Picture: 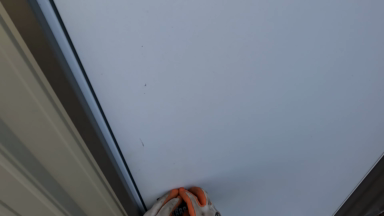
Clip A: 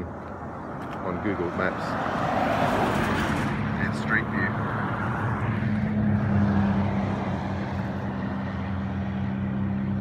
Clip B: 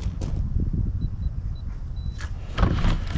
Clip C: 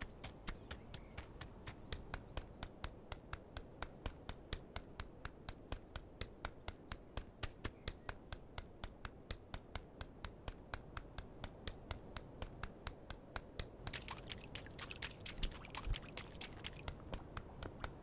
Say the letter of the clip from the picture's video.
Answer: B